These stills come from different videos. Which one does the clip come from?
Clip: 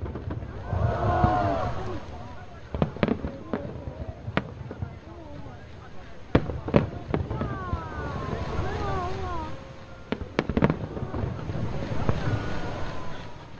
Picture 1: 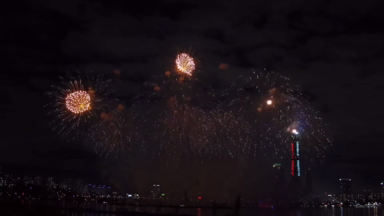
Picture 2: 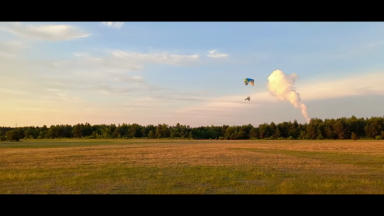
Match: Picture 1